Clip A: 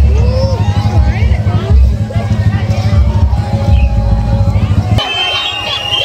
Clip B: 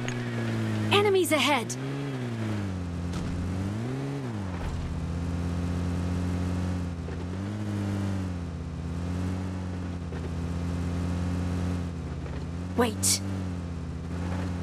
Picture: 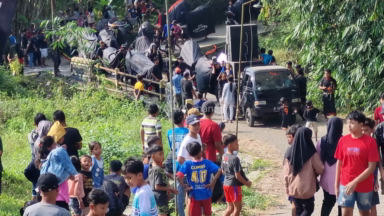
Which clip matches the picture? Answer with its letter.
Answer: A